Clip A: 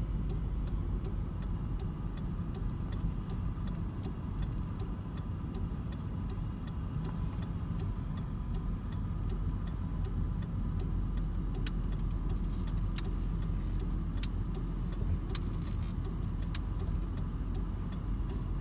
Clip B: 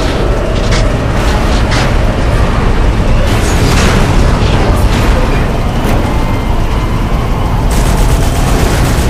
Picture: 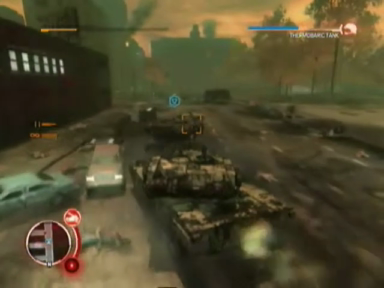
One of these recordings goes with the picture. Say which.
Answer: B